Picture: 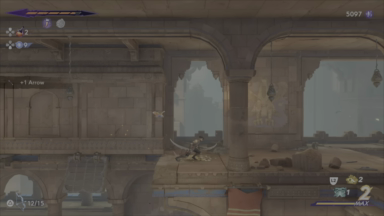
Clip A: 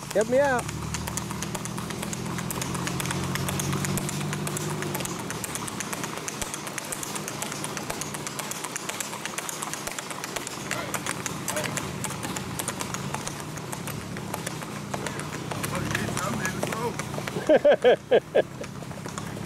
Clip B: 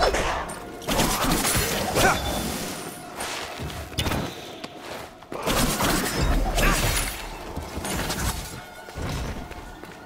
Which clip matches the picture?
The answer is B